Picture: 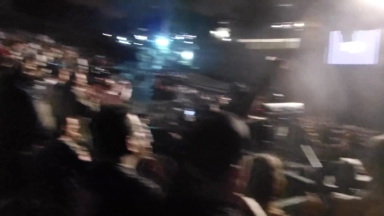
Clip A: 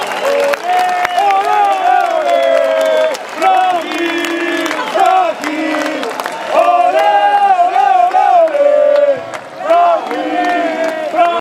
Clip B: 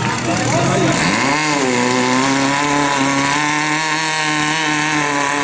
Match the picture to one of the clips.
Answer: A